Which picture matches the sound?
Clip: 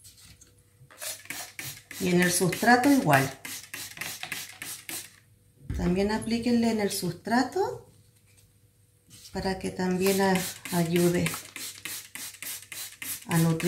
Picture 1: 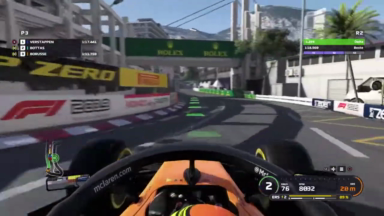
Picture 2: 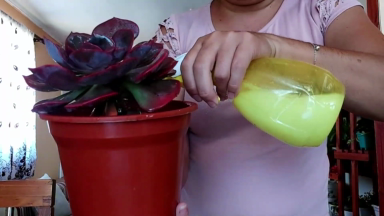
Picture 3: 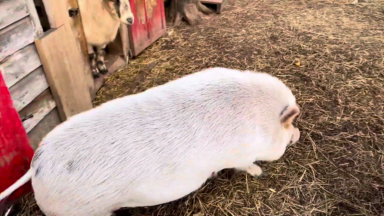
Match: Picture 2